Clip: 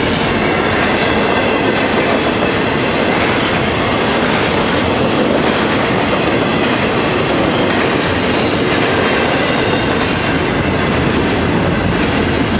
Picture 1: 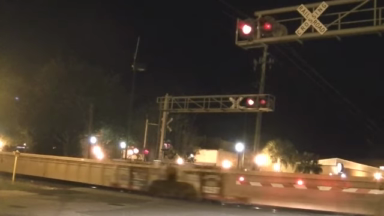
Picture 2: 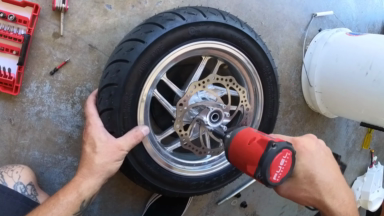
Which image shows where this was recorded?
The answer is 1